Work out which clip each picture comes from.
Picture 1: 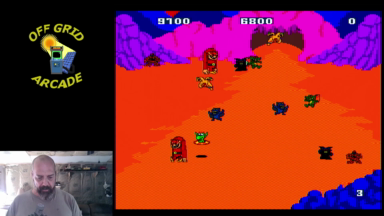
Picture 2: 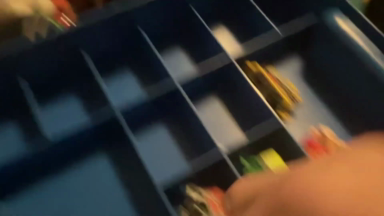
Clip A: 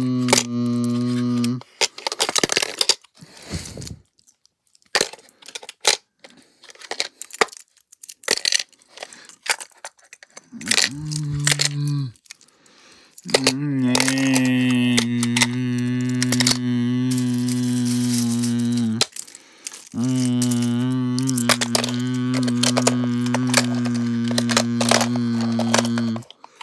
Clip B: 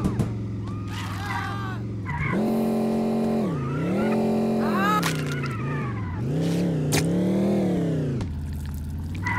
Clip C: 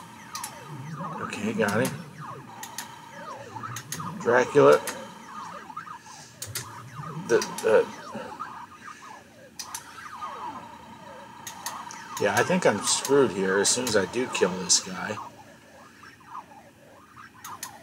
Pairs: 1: C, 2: A